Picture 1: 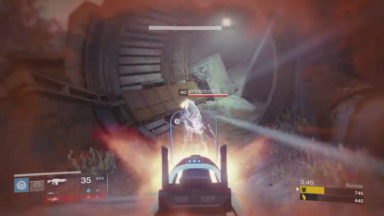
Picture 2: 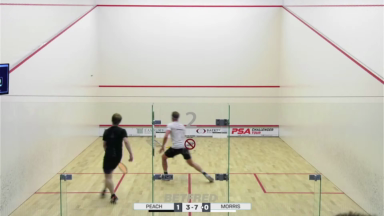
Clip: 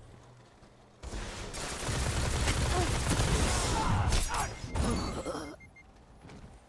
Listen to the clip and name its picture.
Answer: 1